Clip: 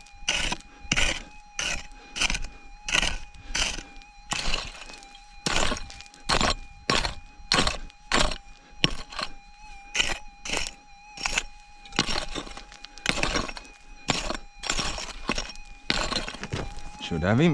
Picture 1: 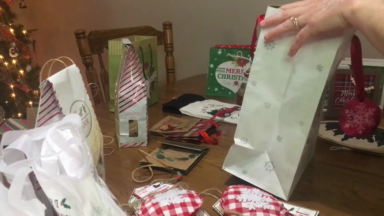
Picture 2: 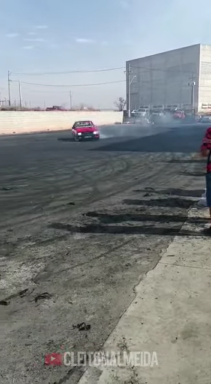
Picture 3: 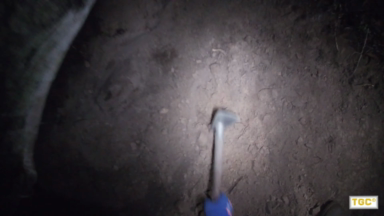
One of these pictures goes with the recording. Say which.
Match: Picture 3